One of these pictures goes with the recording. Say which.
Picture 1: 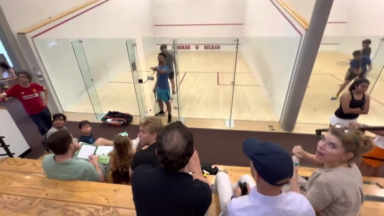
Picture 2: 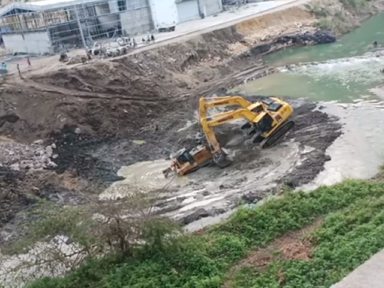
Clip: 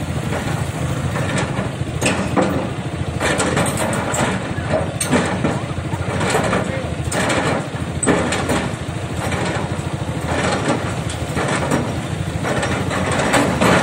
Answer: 2